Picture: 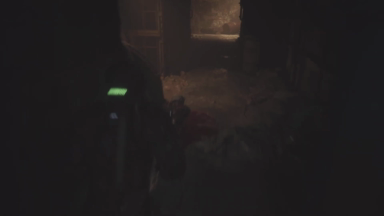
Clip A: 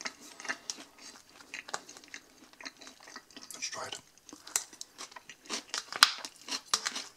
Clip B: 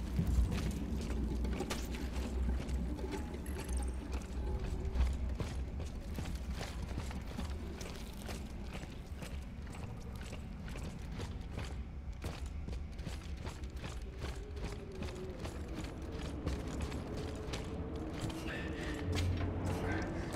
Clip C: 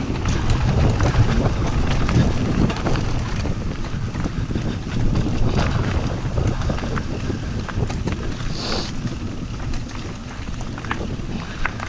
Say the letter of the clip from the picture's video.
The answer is B